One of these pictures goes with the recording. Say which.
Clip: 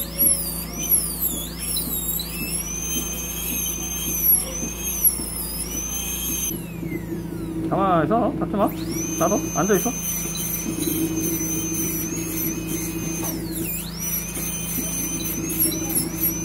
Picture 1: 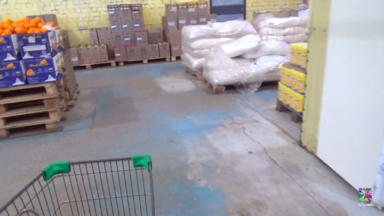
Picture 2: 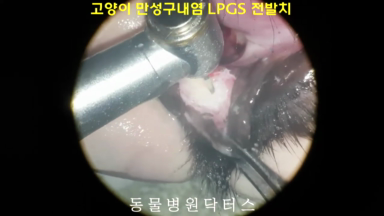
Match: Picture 2